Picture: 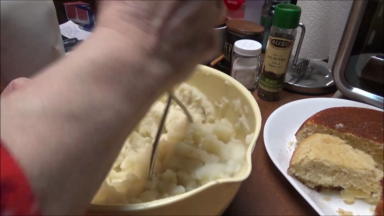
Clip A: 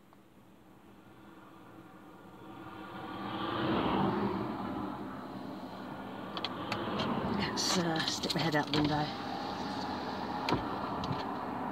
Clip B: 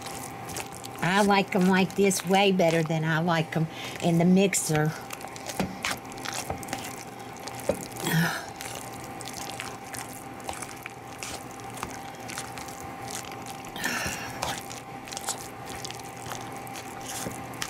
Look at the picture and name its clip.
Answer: B